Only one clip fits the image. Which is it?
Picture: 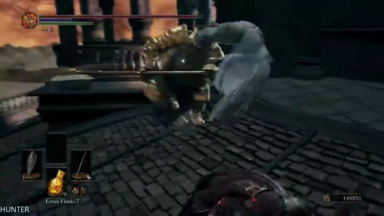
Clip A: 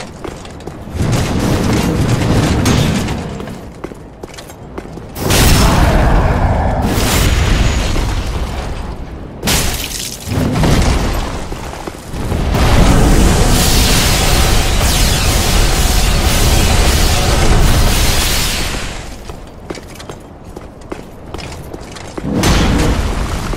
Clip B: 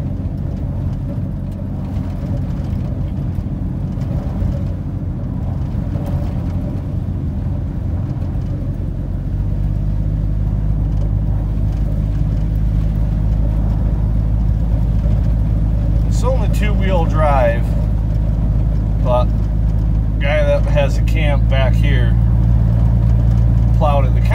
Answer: A